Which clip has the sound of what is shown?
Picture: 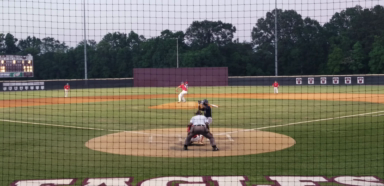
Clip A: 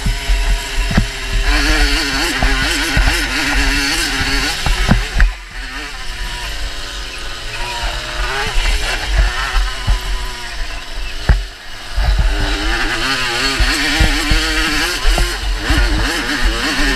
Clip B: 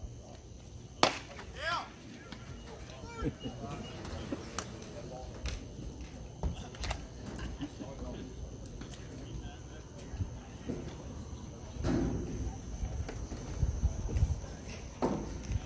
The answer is B